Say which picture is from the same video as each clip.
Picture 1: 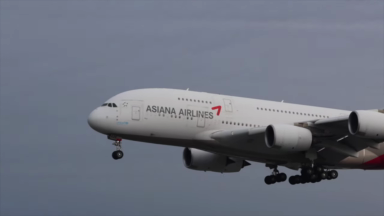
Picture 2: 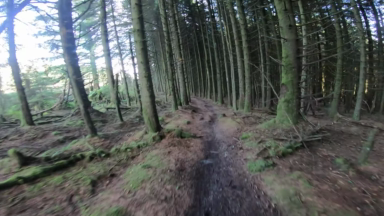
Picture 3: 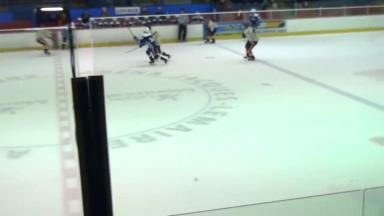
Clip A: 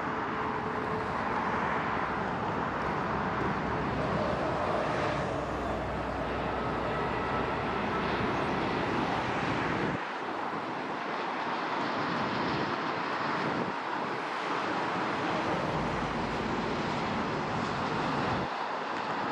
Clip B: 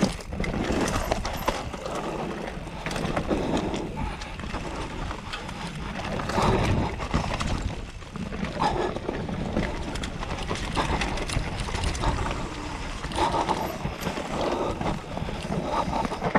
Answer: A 1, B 2